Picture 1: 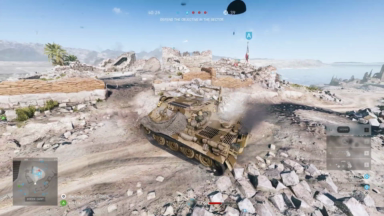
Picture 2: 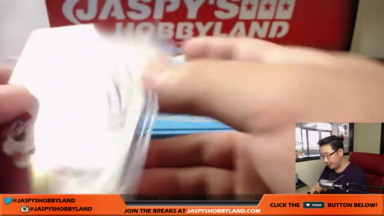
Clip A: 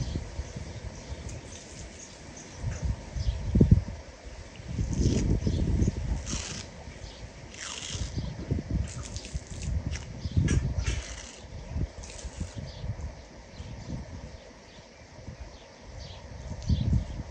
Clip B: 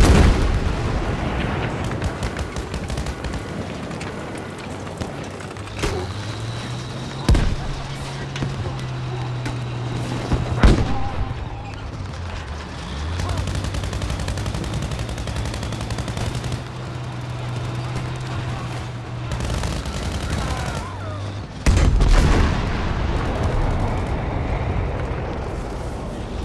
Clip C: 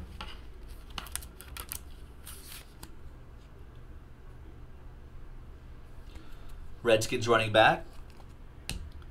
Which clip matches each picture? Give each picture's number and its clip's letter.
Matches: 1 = B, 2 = C